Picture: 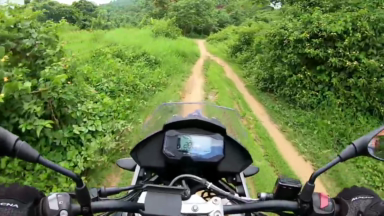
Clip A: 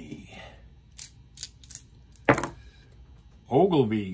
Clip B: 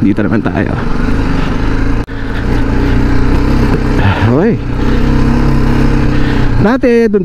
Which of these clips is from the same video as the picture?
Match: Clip B